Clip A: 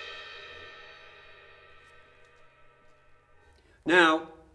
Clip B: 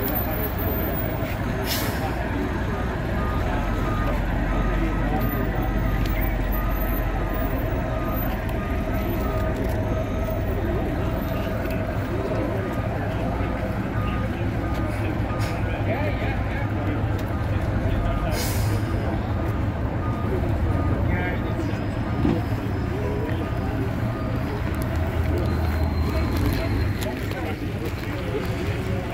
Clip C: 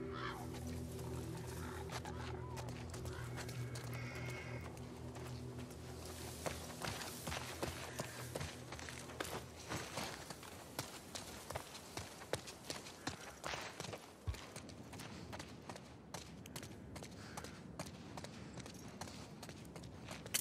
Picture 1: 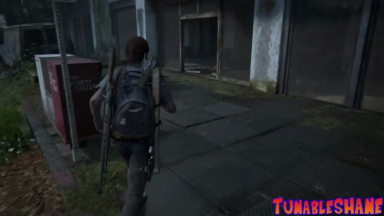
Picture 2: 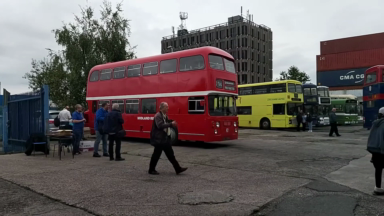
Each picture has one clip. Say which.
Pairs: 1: C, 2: B